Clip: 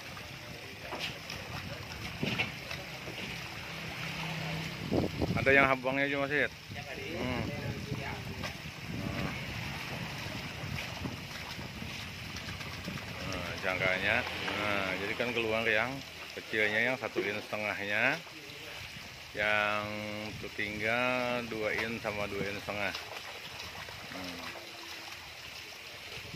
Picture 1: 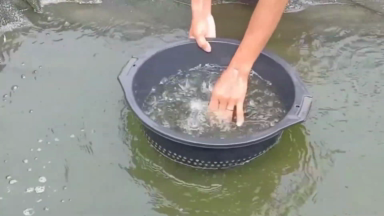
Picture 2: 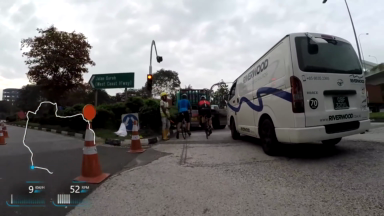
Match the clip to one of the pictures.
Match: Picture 1